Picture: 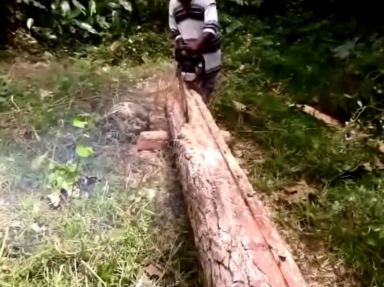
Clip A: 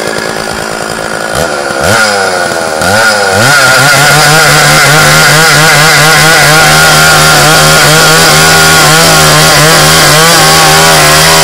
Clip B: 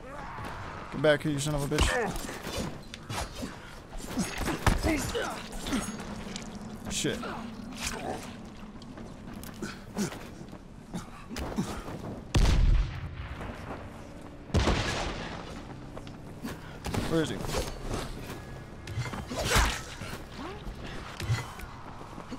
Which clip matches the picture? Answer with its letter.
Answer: A